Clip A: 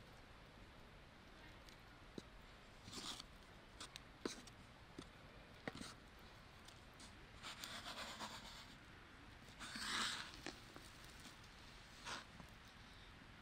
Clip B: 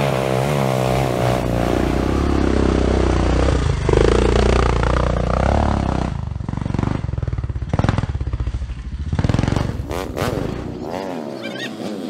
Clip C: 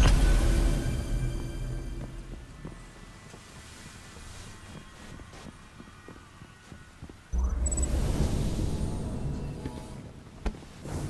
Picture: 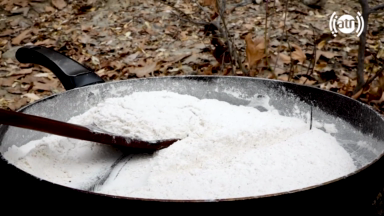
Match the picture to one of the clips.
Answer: A